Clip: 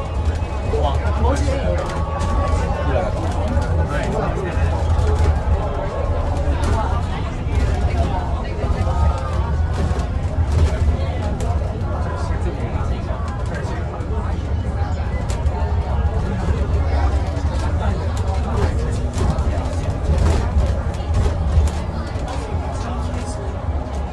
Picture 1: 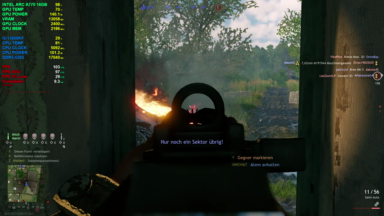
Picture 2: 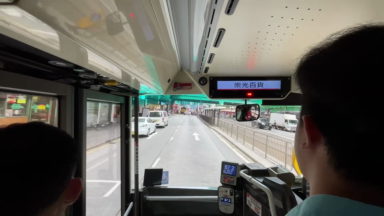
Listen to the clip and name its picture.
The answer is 2